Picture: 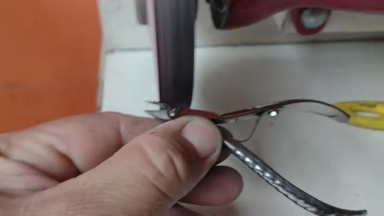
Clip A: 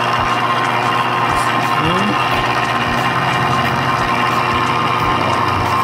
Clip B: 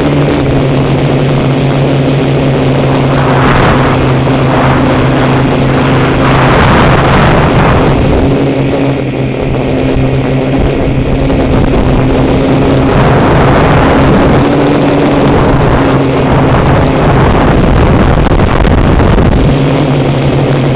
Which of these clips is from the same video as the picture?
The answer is A